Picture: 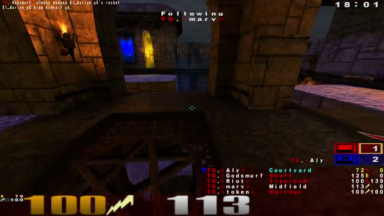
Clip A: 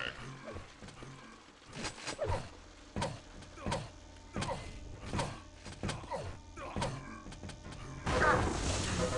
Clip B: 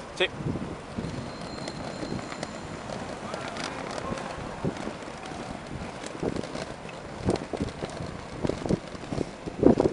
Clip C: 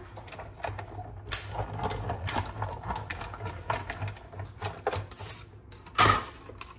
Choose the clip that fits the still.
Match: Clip A